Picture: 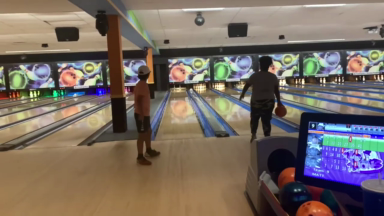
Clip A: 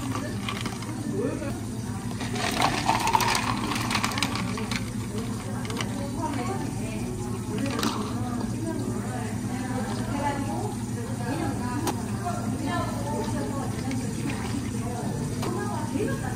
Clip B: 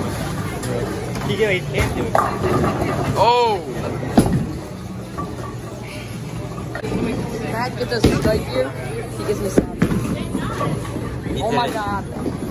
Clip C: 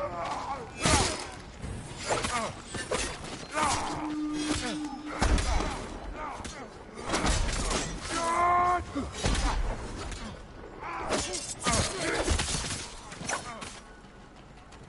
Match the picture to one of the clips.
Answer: B